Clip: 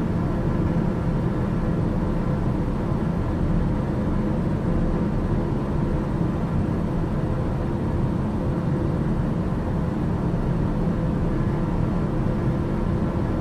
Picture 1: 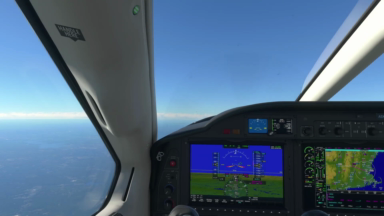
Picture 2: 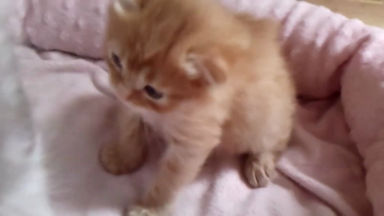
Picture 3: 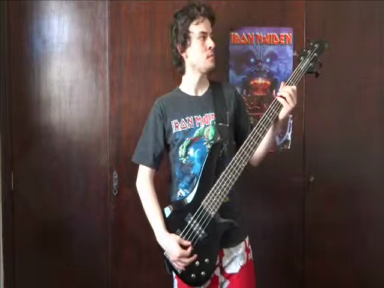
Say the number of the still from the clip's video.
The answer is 1